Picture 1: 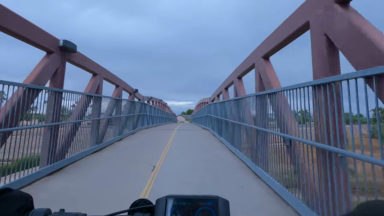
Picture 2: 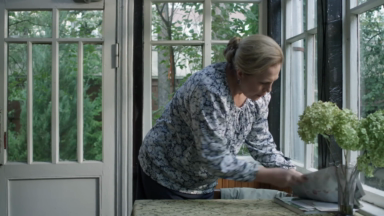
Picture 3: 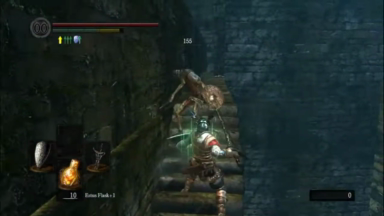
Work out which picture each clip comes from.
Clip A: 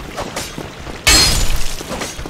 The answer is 3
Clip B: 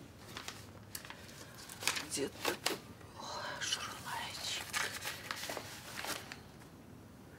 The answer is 2